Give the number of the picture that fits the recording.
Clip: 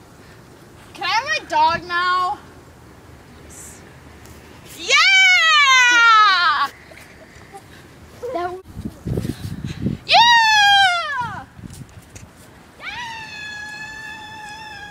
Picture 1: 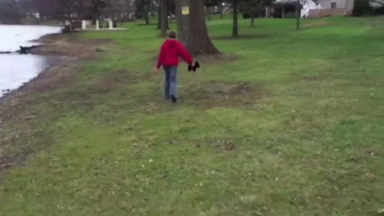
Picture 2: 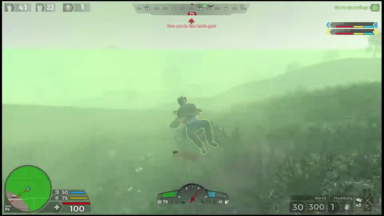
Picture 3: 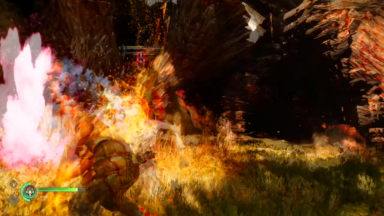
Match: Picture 1